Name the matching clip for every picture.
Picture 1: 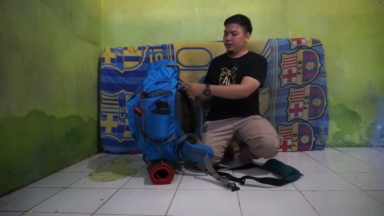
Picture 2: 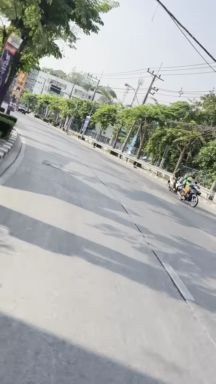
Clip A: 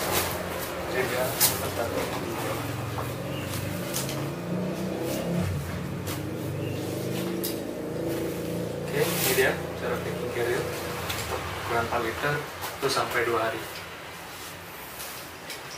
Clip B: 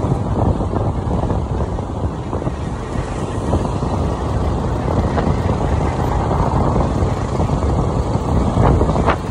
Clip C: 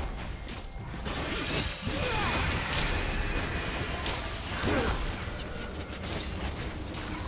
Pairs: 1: A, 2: B